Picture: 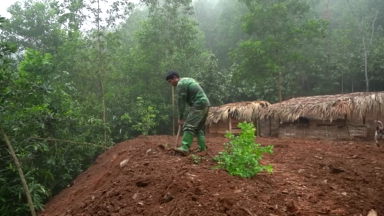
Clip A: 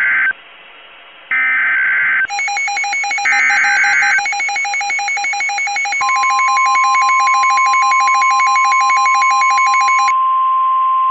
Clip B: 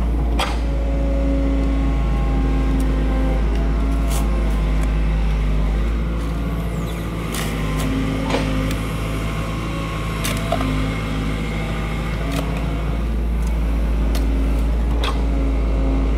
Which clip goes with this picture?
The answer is B